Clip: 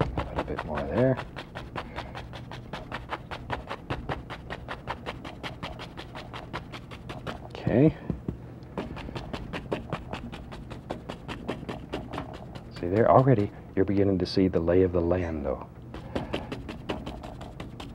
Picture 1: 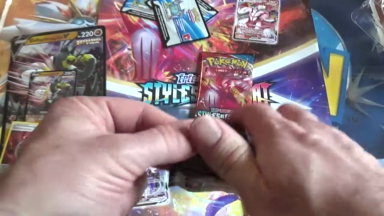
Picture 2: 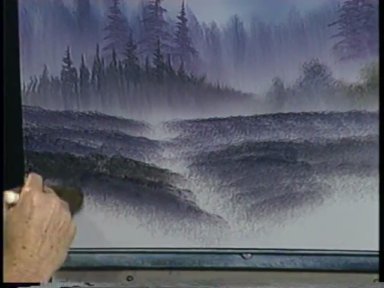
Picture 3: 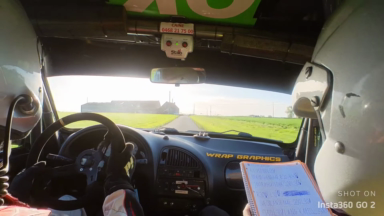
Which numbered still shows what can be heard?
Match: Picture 2